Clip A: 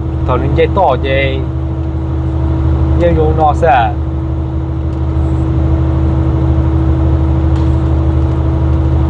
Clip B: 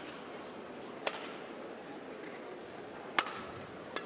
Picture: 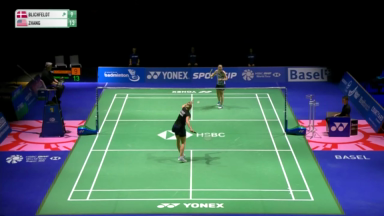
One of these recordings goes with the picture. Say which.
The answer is B